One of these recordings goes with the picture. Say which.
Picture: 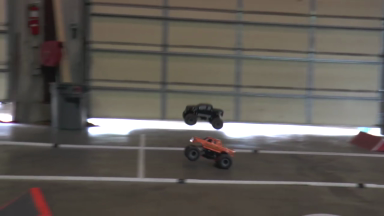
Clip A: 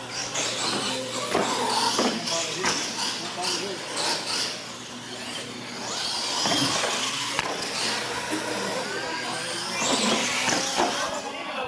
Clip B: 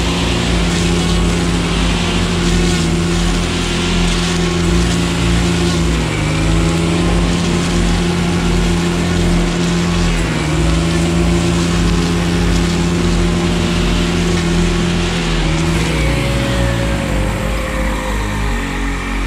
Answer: A